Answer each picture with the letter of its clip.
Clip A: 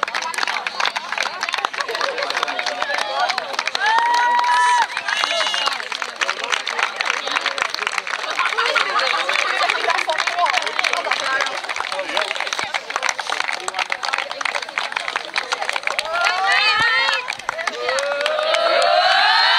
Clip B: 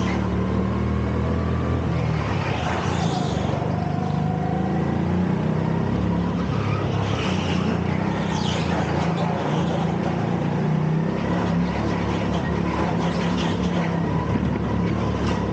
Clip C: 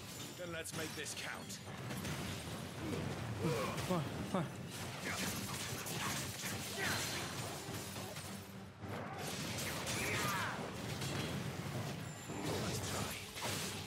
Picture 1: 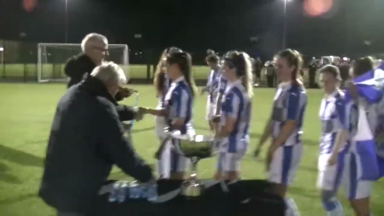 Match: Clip A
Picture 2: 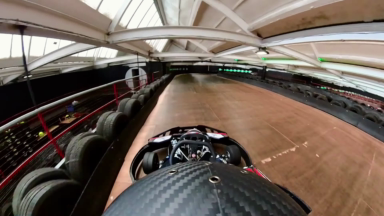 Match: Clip B